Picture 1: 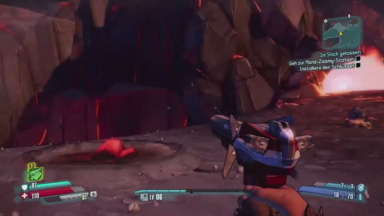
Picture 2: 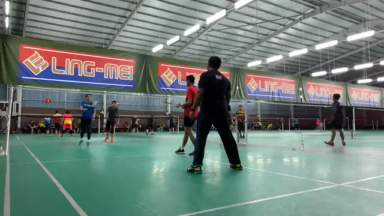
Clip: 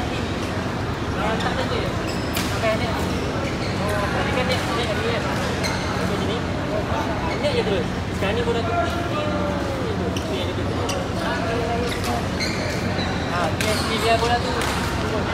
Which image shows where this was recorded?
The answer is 2